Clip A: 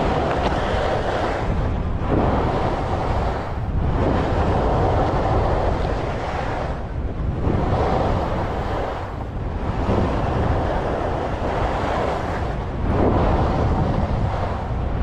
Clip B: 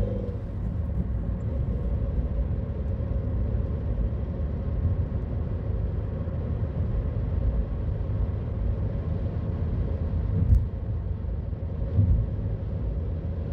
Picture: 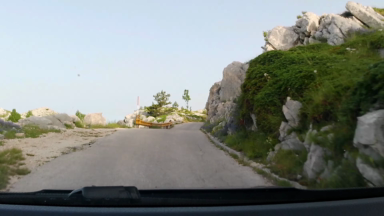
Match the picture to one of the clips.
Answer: B